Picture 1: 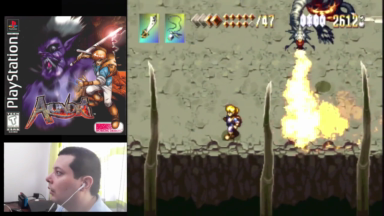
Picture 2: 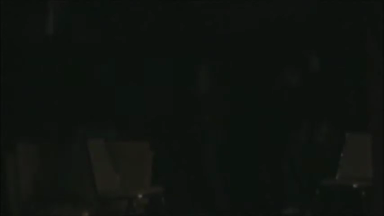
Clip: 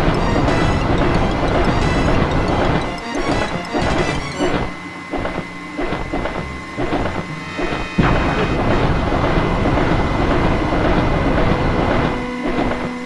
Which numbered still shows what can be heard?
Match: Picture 1